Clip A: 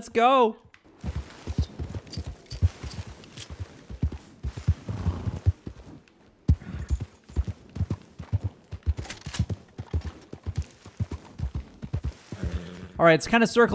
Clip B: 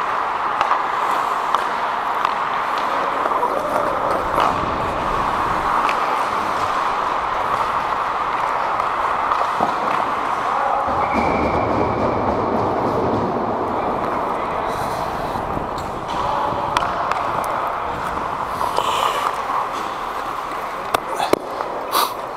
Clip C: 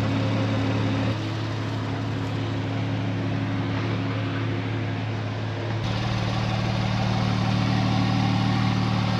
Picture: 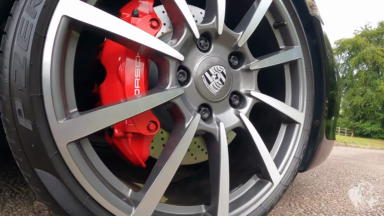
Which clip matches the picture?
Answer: C